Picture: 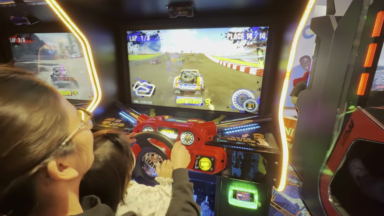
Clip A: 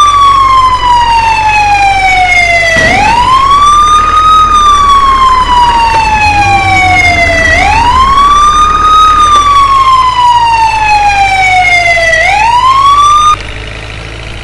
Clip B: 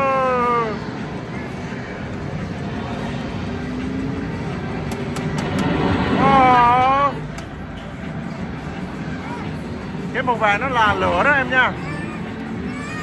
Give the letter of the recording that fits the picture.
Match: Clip B